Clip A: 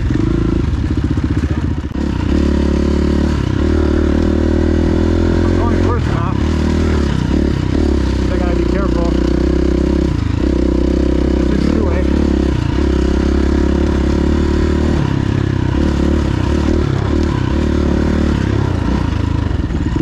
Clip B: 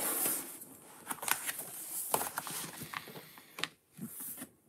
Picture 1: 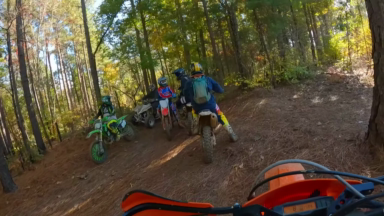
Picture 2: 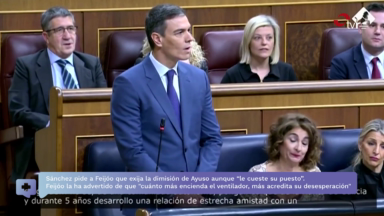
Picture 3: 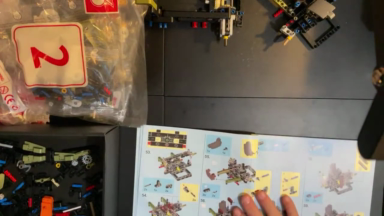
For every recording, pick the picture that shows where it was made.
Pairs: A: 1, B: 3